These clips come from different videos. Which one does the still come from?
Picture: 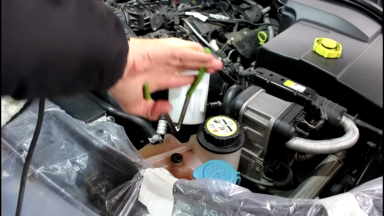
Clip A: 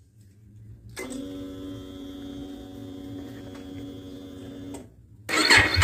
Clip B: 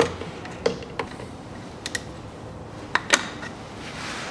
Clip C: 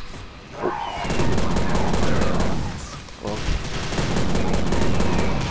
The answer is B